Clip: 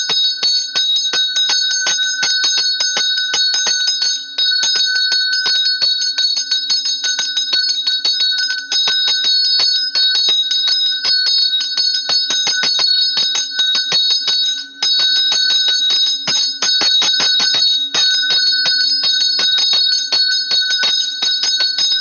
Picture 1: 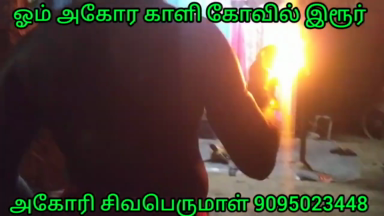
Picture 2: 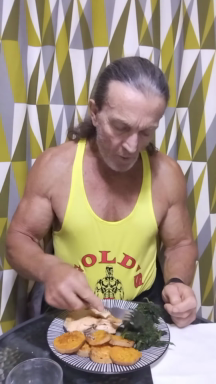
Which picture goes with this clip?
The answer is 1